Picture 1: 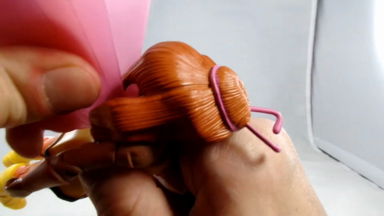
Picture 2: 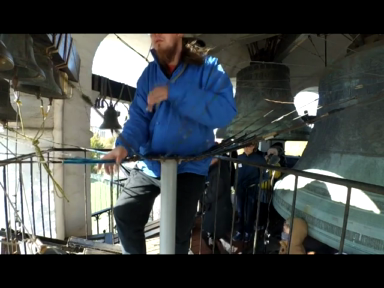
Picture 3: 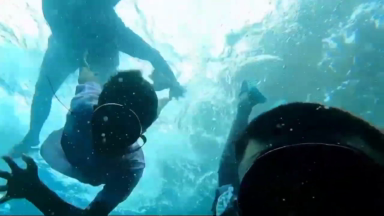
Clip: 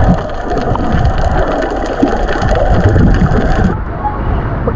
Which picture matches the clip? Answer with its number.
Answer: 3